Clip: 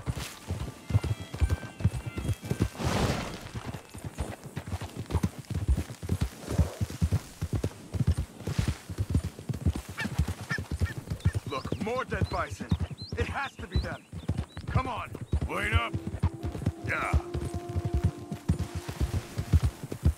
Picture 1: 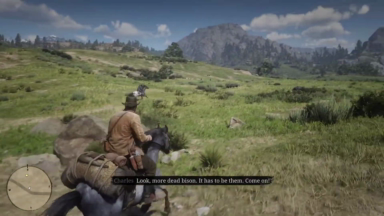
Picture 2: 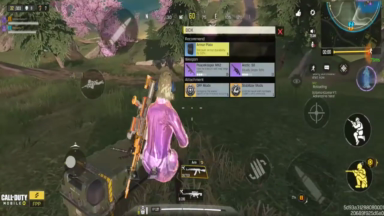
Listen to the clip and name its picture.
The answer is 1